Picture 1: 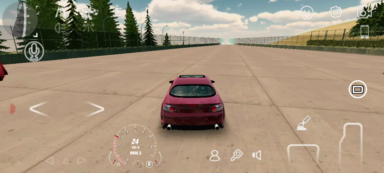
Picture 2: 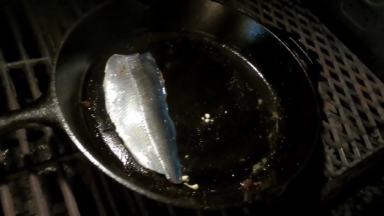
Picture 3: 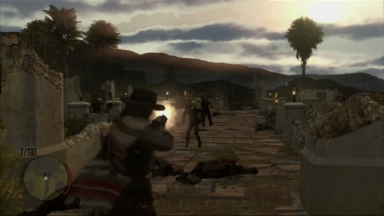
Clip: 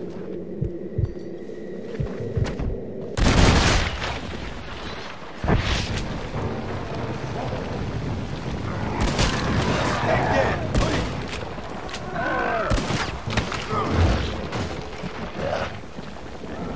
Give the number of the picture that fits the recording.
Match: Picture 3